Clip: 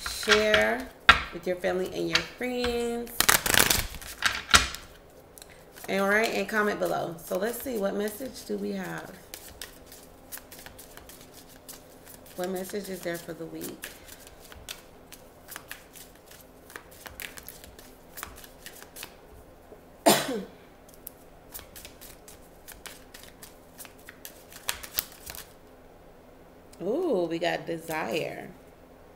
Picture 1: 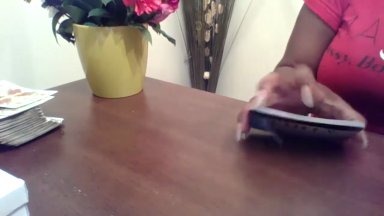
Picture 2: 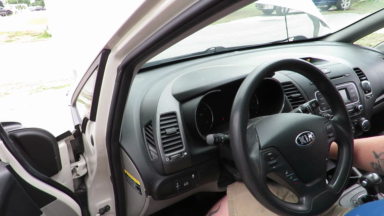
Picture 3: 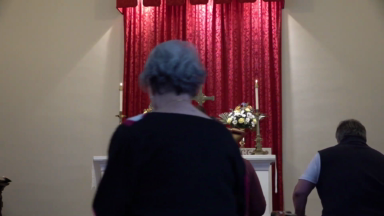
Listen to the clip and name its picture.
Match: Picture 1